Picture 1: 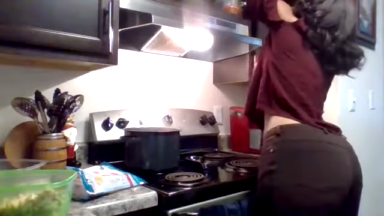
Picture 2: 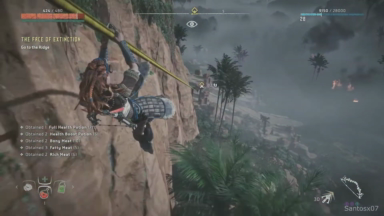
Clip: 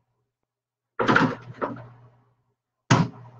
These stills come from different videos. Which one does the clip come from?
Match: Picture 1